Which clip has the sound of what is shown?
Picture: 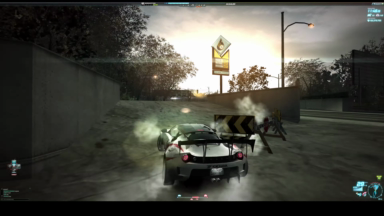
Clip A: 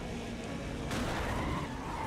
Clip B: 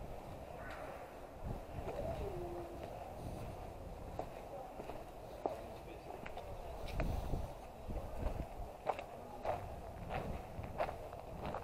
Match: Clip A